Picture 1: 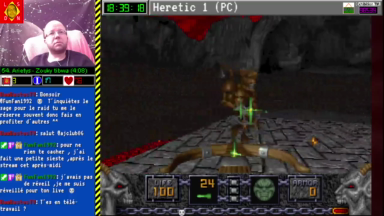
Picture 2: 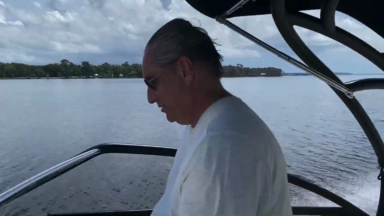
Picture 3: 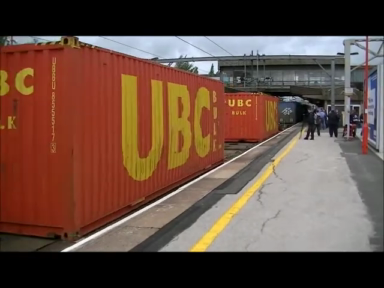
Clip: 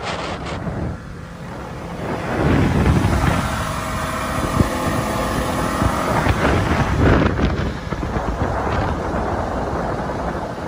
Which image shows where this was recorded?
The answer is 2